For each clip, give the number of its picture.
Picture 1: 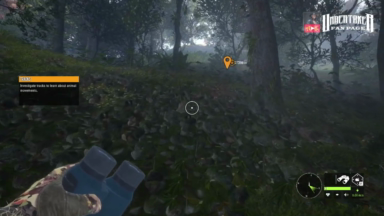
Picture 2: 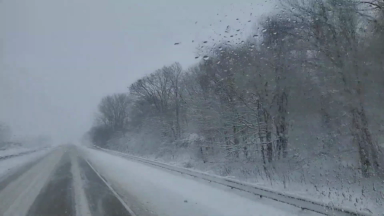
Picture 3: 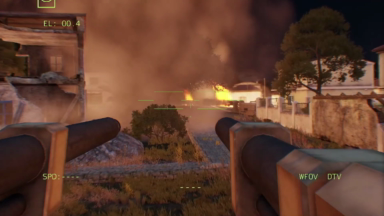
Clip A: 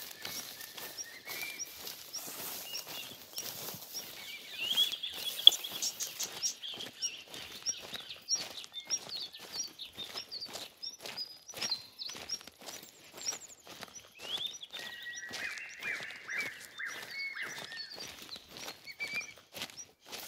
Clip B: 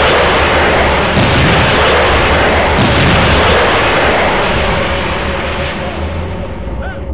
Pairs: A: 1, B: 3